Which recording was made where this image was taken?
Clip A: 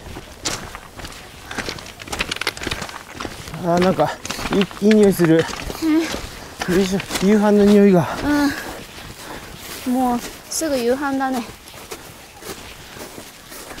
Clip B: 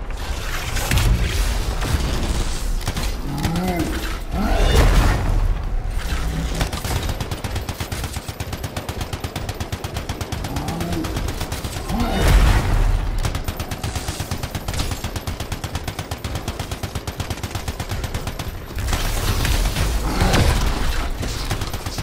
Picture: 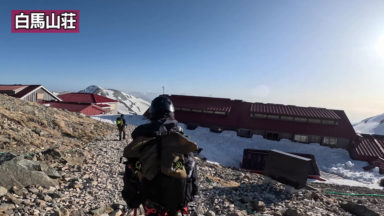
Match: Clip A